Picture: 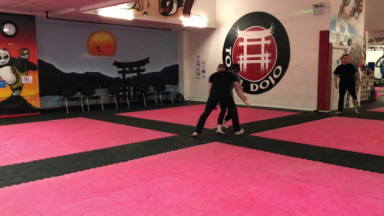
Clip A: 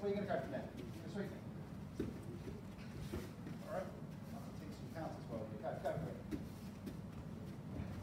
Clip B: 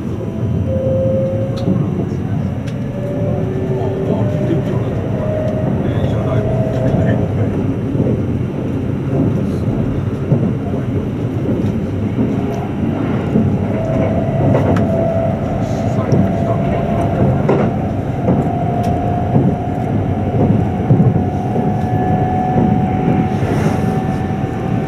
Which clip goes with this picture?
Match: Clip A